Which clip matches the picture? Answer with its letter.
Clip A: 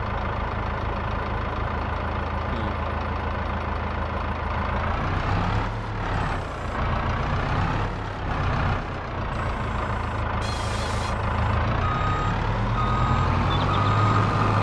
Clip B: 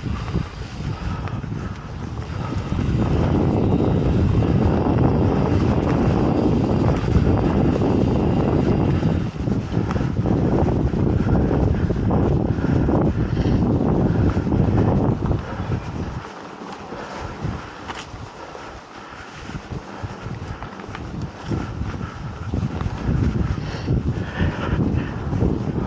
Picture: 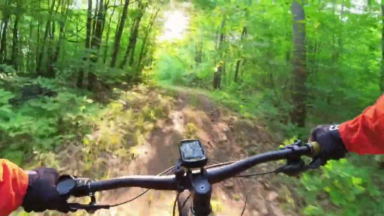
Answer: B